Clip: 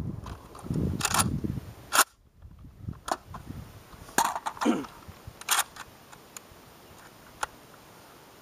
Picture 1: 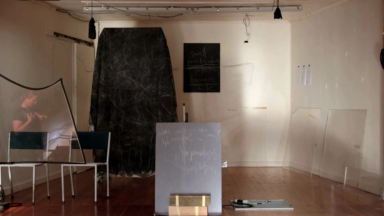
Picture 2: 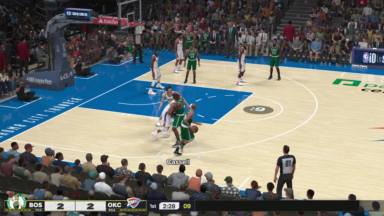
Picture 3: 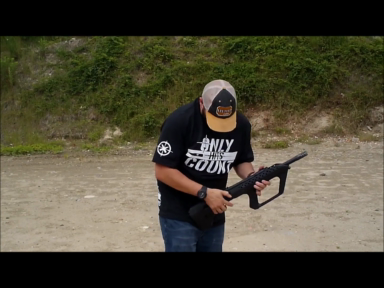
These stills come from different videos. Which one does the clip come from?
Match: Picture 3